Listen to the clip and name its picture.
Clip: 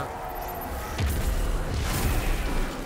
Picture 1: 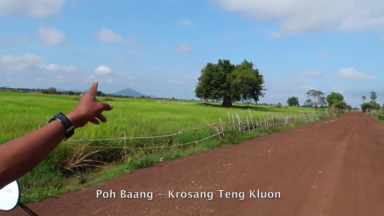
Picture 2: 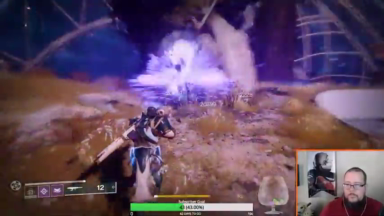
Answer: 2